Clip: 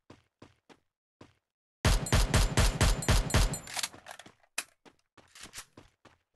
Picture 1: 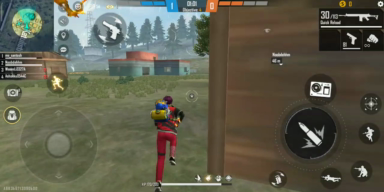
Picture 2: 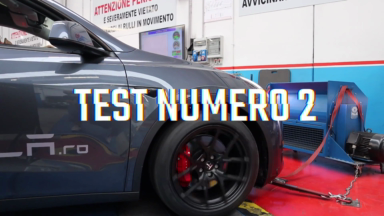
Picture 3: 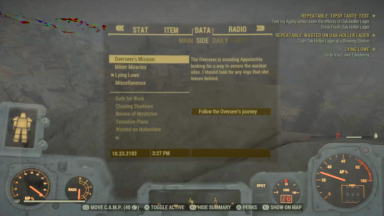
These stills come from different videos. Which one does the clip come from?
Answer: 1